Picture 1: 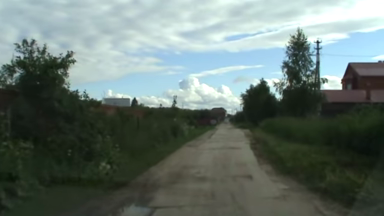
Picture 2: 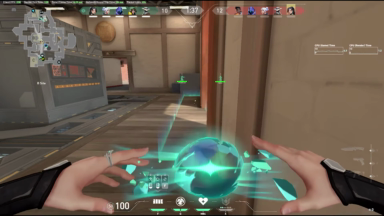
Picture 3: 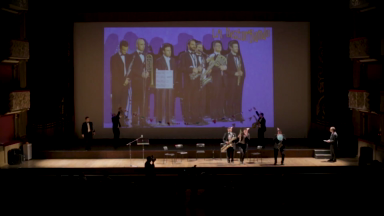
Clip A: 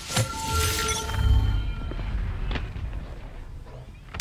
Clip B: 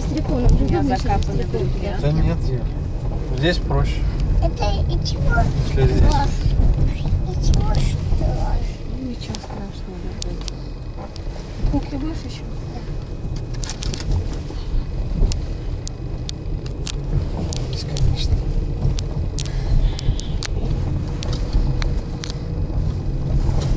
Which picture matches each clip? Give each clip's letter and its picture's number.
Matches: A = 2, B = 1